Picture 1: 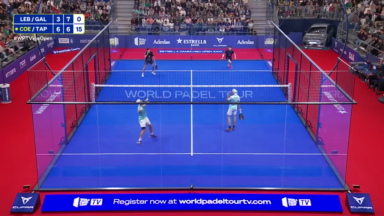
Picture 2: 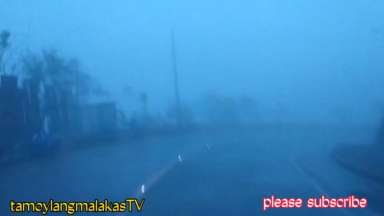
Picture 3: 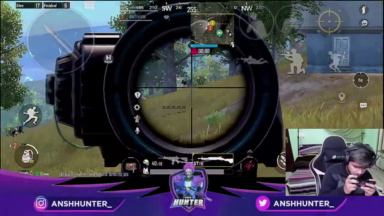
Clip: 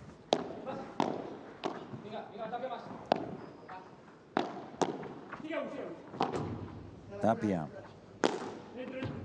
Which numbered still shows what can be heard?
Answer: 1